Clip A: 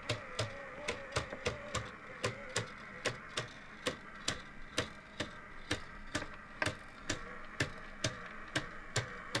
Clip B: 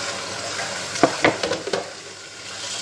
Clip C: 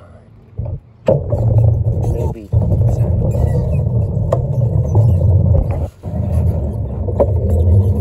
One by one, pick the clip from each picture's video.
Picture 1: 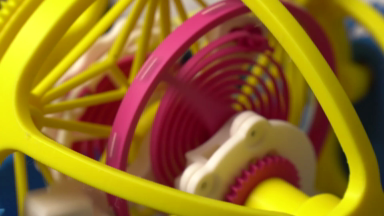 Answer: A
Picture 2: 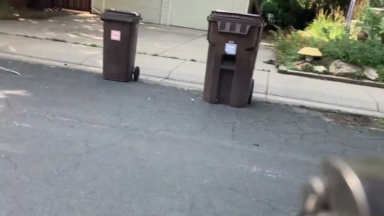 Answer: C